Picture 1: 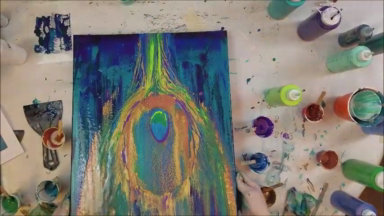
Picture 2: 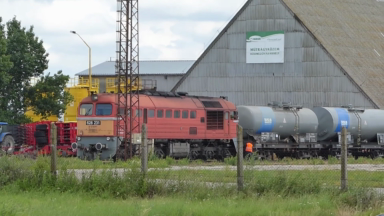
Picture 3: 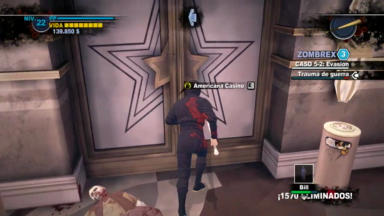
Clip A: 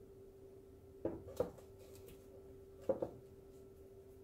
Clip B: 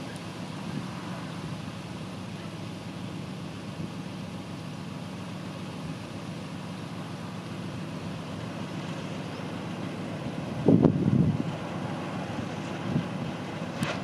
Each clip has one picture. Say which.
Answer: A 1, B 2